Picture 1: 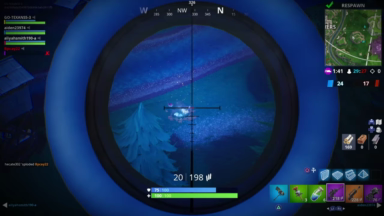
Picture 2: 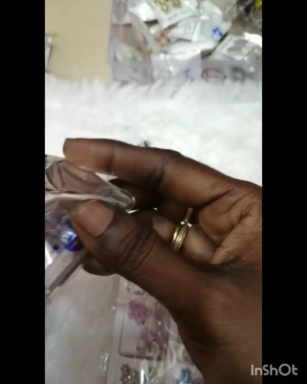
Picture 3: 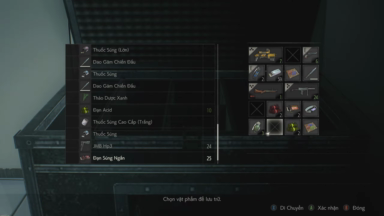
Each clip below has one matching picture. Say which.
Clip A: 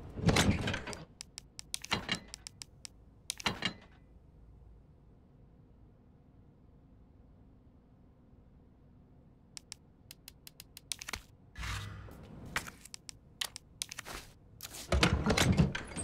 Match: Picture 3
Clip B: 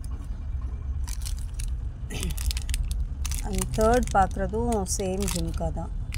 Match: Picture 2